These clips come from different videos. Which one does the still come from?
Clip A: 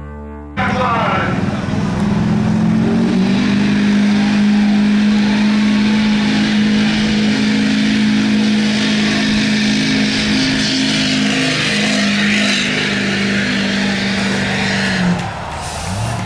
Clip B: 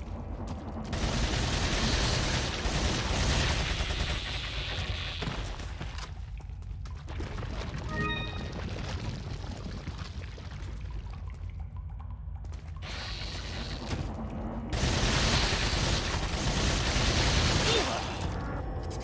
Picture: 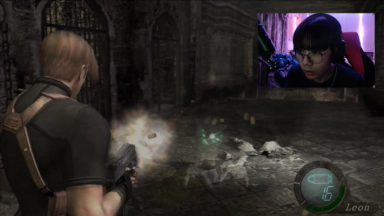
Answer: B